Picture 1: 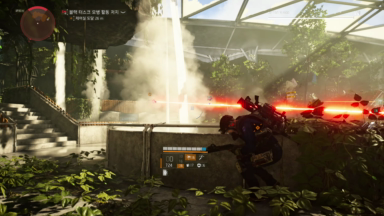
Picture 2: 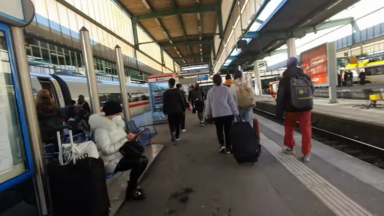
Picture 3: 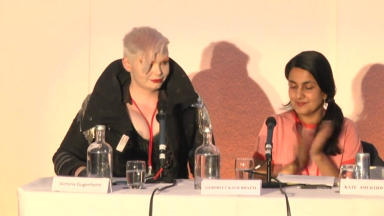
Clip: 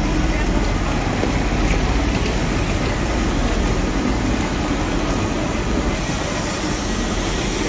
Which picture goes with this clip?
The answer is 2